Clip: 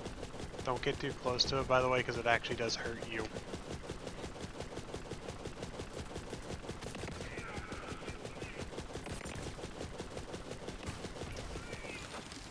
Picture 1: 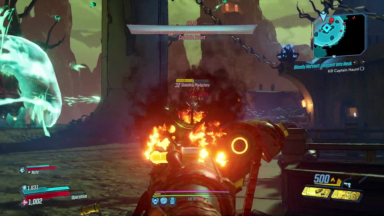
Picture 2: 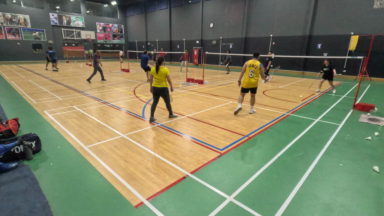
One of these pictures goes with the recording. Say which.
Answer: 1